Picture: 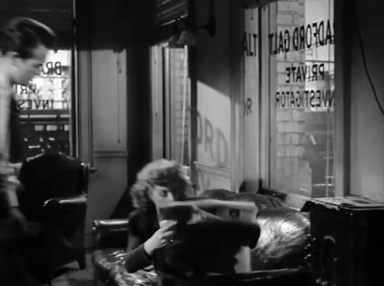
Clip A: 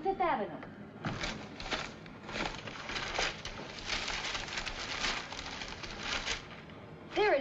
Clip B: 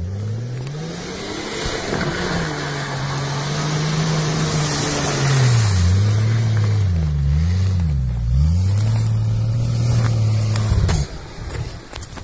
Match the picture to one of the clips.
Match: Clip A